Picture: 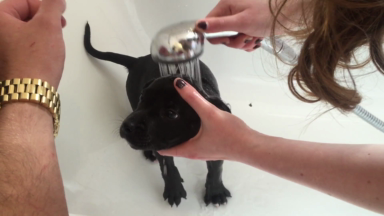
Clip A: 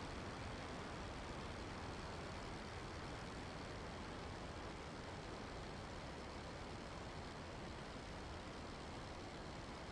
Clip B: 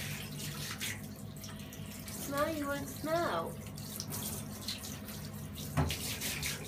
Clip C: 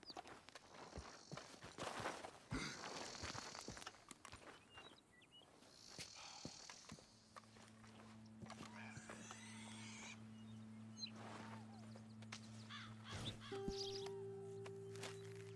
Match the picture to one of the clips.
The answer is B